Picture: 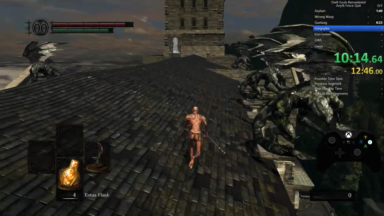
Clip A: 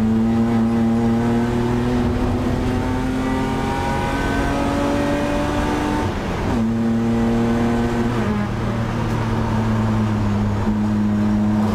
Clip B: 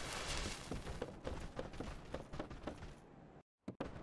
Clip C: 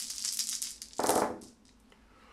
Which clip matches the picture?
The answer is B